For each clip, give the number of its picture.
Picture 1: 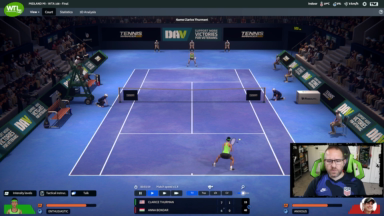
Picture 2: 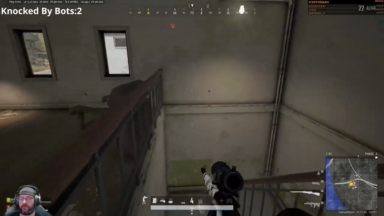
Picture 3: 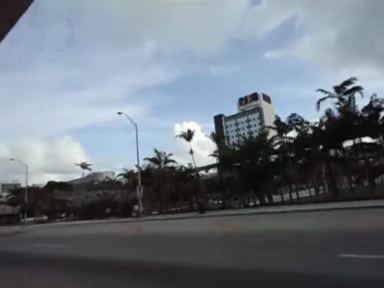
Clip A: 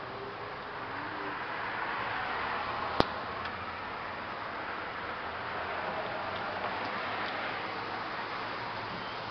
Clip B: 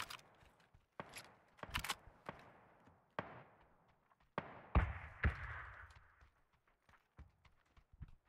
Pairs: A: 3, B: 2